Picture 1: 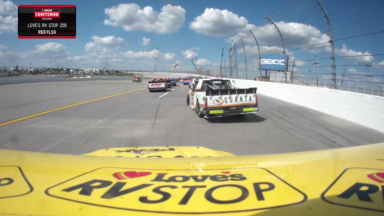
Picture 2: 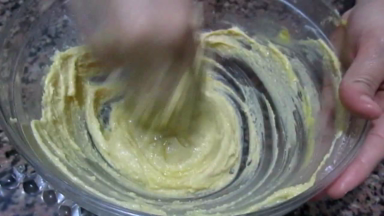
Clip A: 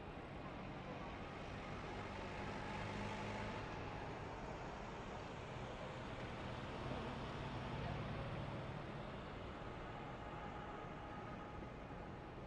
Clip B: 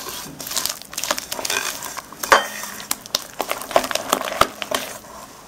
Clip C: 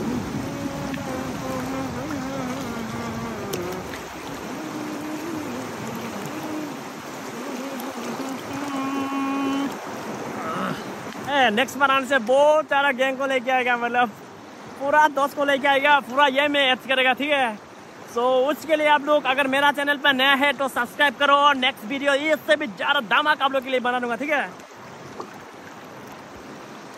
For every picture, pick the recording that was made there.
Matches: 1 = A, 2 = B